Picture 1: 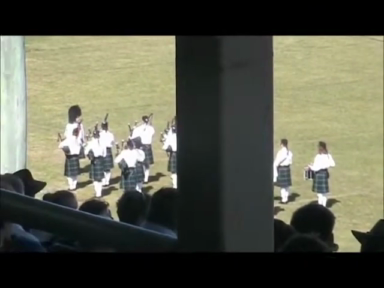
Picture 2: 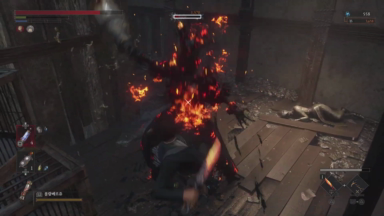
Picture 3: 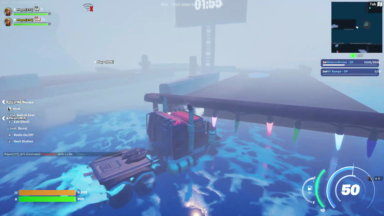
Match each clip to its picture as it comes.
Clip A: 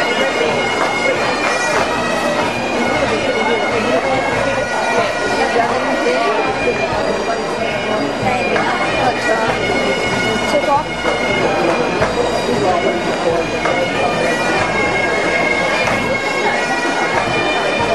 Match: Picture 1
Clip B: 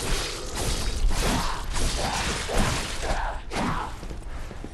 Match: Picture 2